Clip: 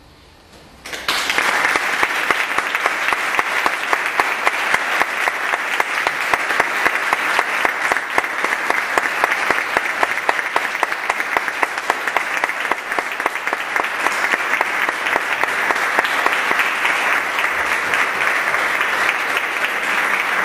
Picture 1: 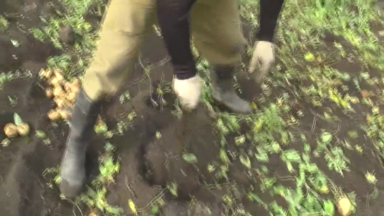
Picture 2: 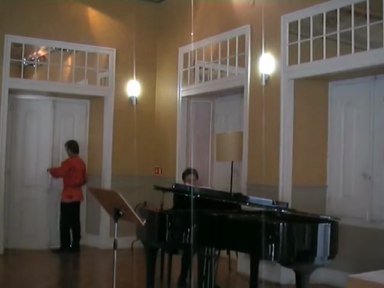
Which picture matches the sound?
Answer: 2